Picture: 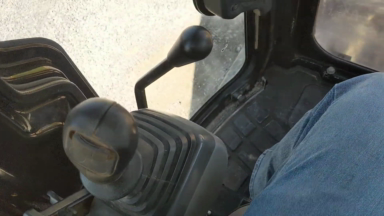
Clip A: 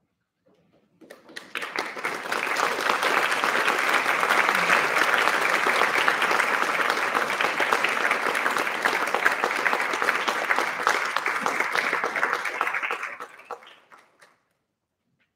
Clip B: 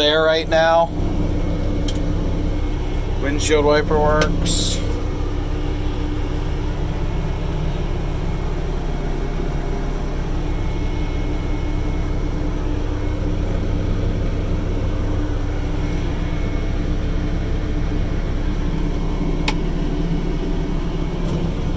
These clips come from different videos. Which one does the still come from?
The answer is B